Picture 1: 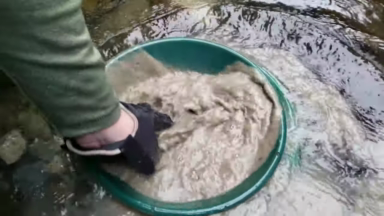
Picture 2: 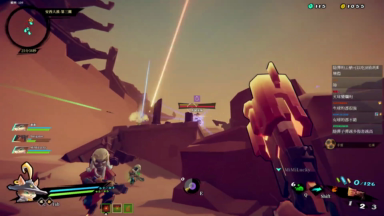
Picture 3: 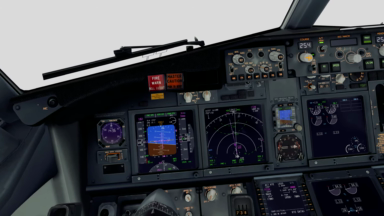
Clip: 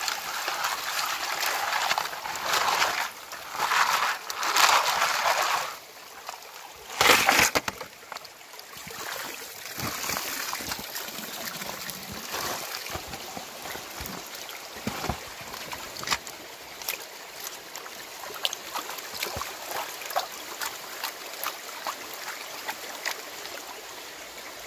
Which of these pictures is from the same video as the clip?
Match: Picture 1